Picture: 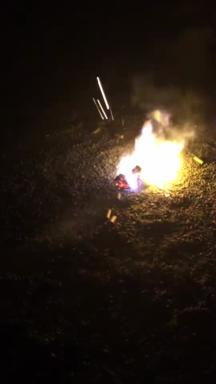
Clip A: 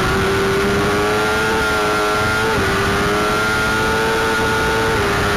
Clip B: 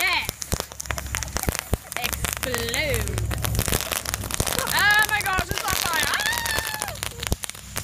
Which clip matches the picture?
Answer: B